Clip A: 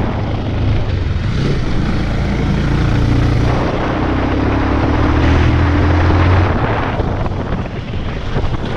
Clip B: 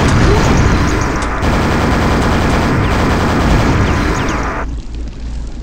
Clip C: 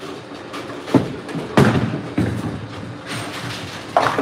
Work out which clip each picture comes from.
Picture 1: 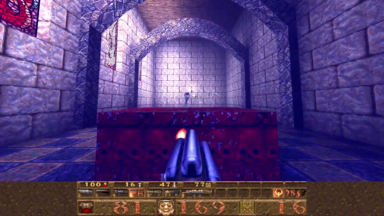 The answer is B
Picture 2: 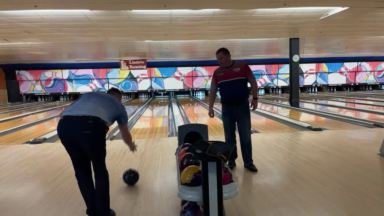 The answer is C